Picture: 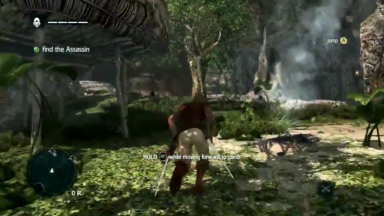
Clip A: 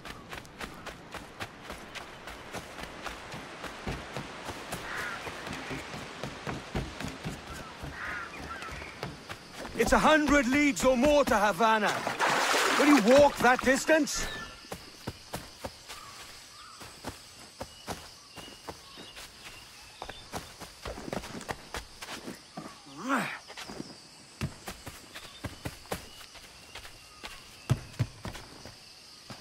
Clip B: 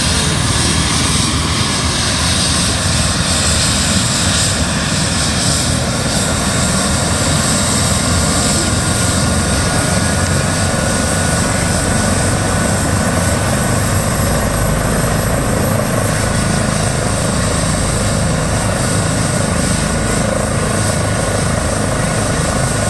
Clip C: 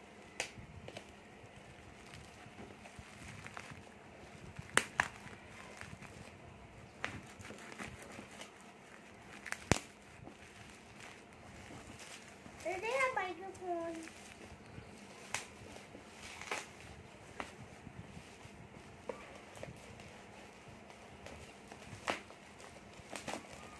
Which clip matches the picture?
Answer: A